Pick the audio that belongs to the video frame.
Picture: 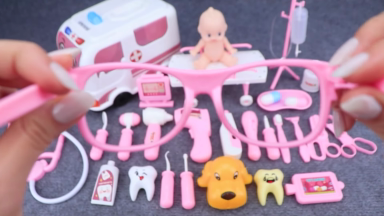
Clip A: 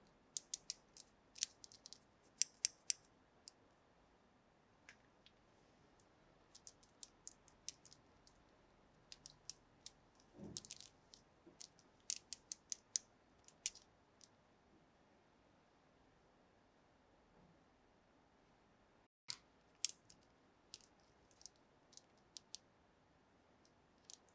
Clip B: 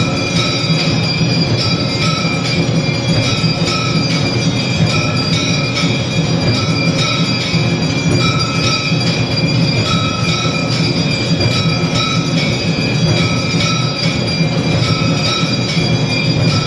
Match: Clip A